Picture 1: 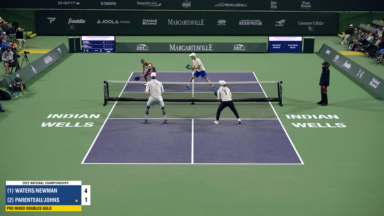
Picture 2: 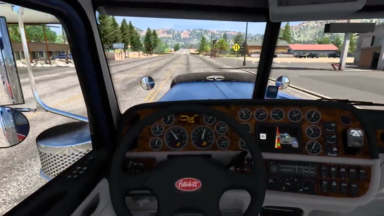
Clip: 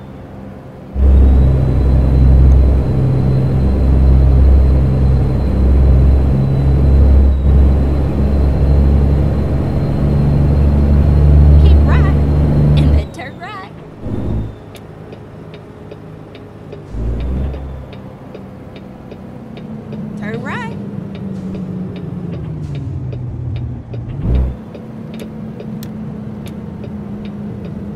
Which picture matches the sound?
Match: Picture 2